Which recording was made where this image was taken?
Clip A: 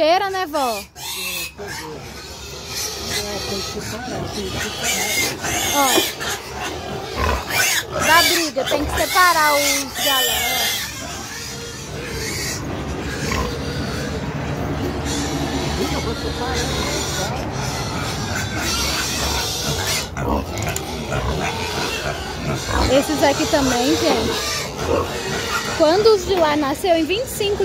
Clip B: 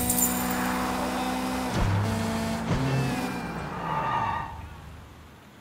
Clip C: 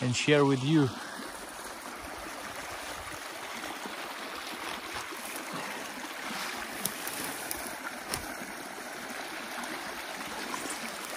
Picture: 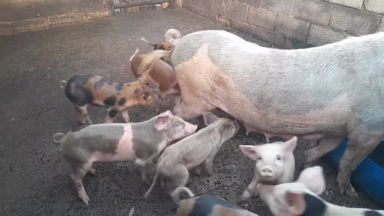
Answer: A